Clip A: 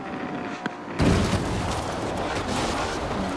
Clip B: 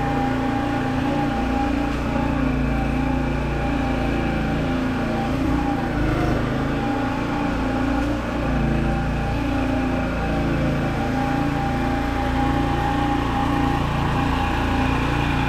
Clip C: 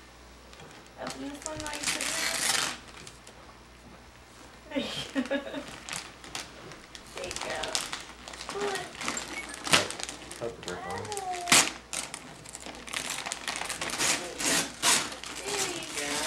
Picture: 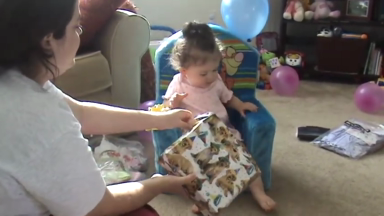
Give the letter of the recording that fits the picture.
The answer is C